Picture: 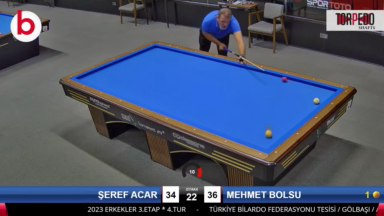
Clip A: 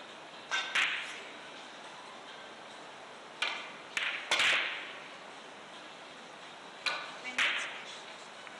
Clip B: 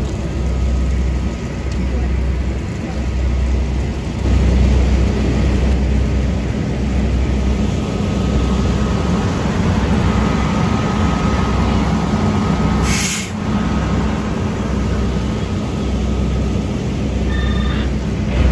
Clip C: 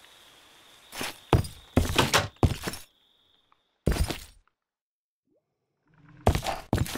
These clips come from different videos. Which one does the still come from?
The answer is A